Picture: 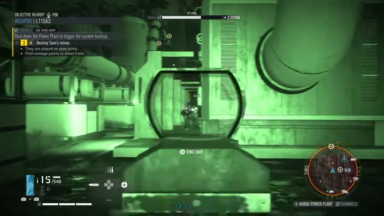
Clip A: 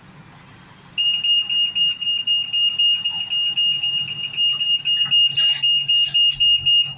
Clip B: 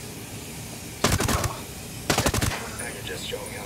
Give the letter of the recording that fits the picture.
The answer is B